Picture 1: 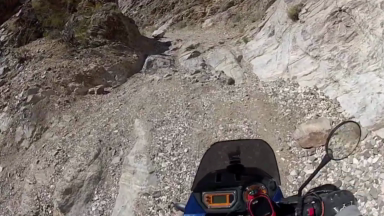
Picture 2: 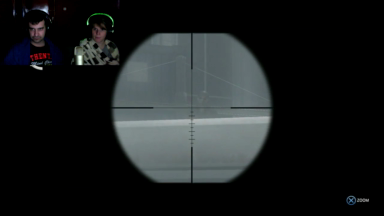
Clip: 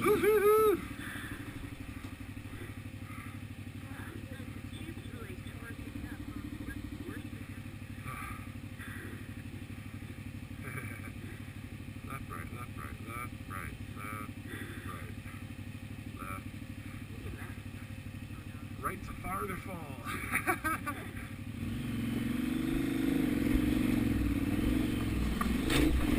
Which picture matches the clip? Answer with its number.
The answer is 1